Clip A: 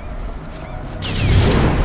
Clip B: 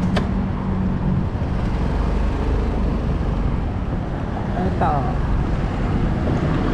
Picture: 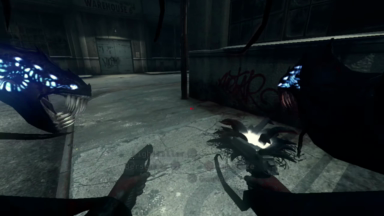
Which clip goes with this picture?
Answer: A